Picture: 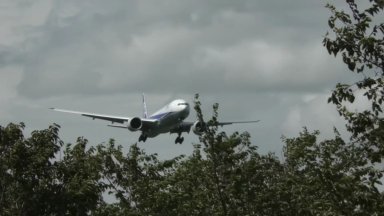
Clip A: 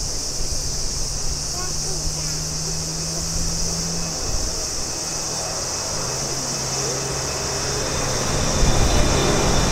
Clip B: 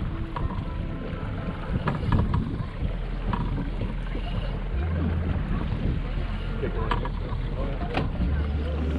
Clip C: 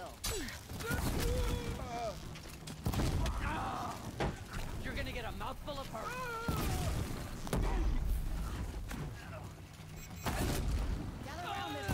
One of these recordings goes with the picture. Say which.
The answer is A